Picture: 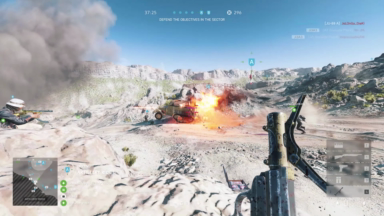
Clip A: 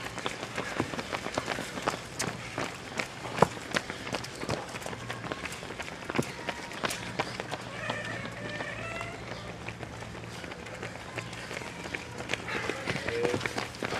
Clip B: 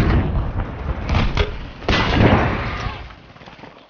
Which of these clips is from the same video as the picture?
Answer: B